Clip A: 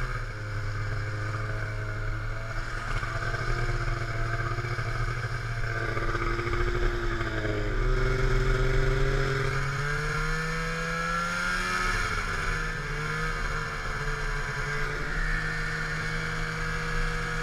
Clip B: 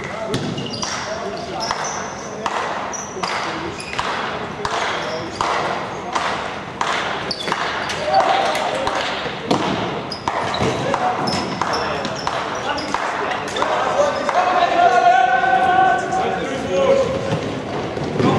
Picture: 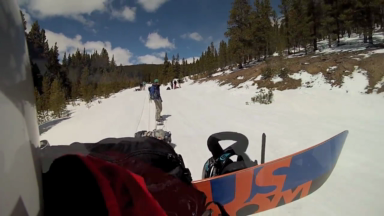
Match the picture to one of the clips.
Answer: A